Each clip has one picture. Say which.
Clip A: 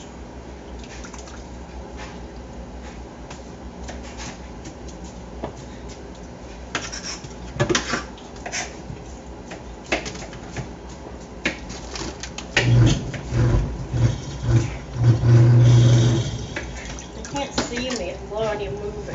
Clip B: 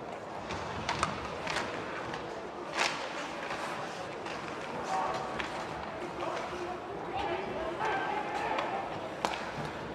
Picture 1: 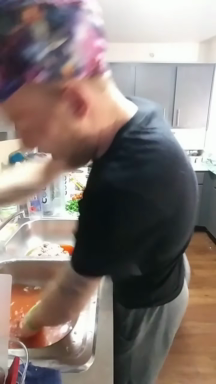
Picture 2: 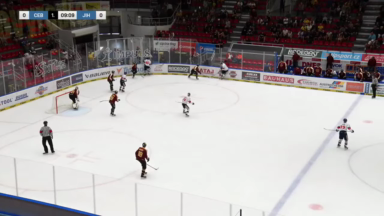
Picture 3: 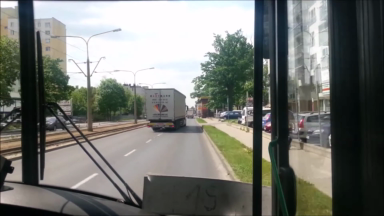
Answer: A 1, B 2